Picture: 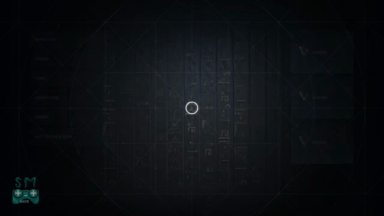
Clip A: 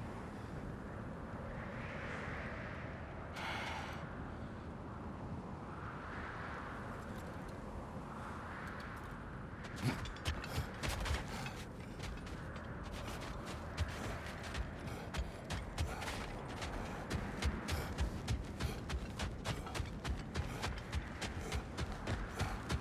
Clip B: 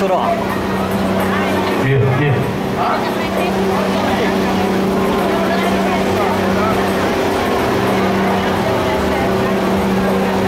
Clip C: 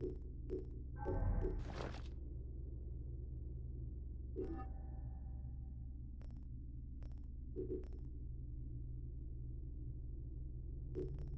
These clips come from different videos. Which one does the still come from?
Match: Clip C